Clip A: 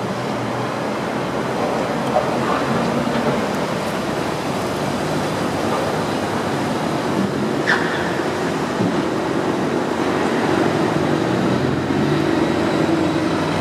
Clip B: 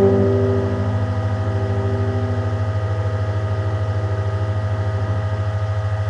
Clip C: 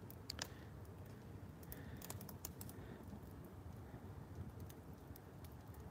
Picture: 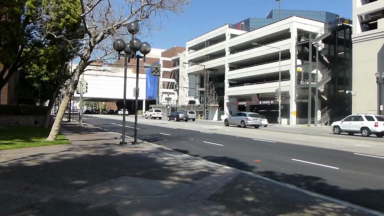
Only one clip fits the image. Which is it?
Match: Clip A